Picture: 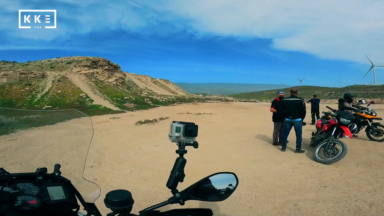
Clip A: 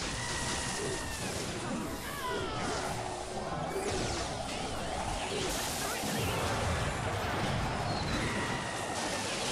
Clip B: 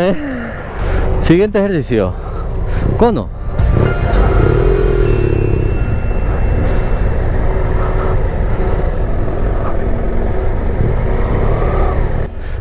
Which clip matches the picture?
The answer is B